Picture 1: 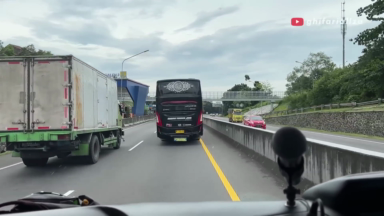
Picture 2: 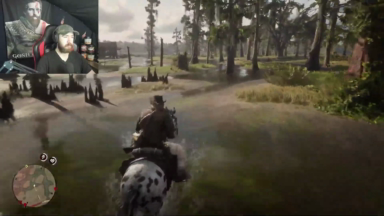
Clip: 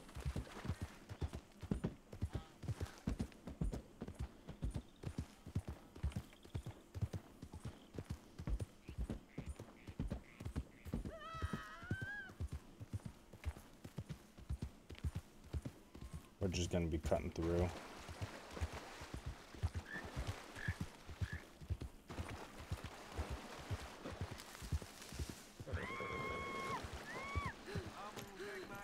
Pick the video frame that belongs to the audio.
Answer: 2